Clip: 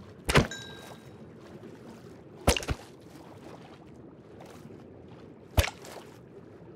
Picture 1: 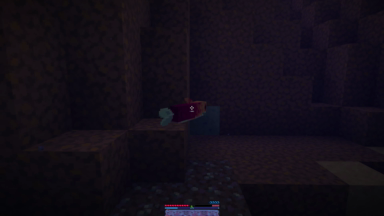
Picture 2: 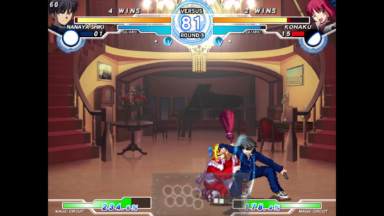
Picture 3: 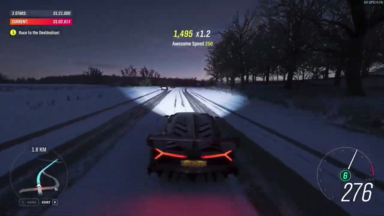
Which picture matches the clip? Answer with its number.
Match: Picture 1